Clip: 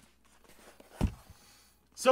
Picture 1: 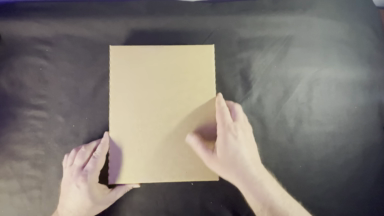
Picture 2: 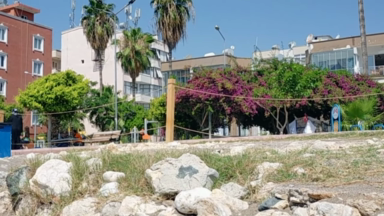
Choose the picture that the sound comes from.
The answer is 1